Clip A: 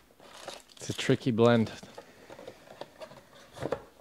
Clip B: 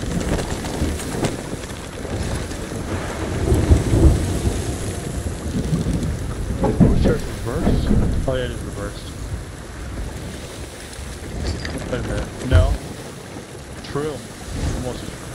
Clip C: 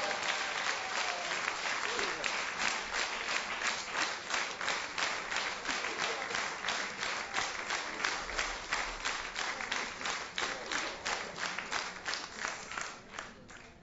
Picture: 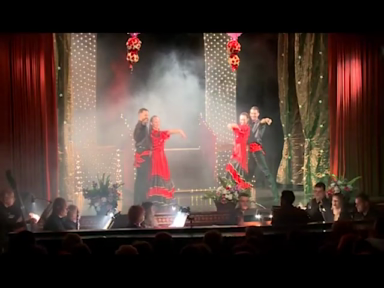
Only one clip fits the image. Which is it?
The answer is C